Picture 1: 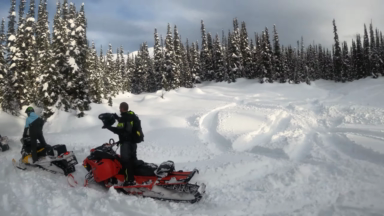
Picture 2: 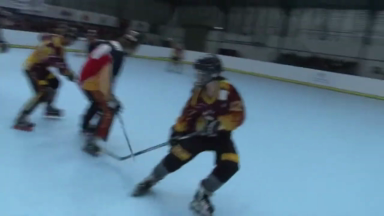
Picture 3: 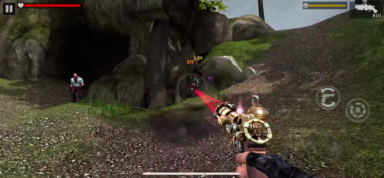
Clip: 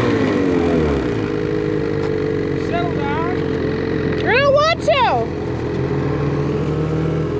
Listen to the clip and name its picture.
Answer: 1